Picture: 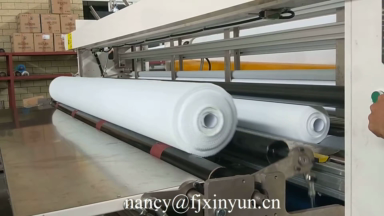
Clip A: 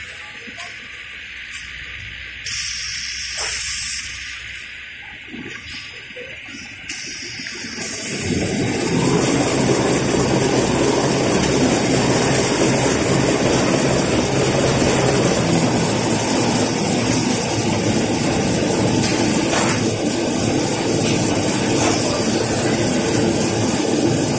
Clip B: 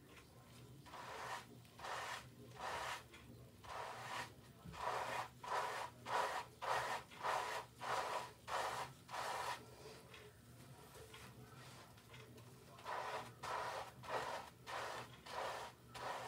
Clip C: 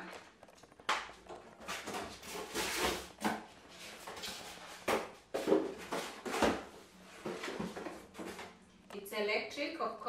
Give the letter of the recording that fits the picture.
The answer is A